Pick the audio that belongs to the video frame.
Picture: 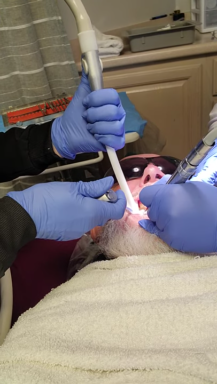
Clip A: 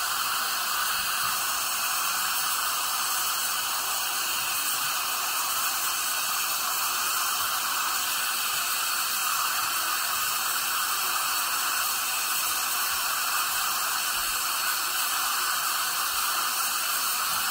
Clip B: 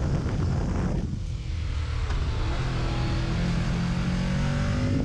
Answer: A